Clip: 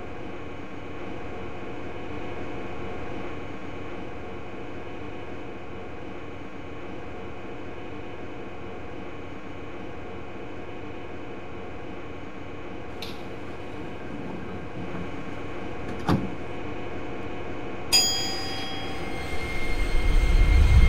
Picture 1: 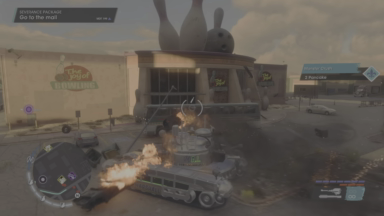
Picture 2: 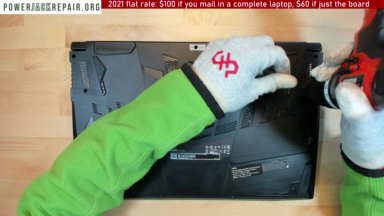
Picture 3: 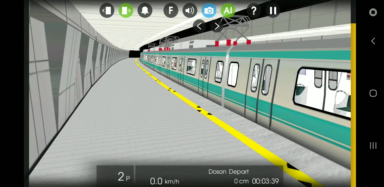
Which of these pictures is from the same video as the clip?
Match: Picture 3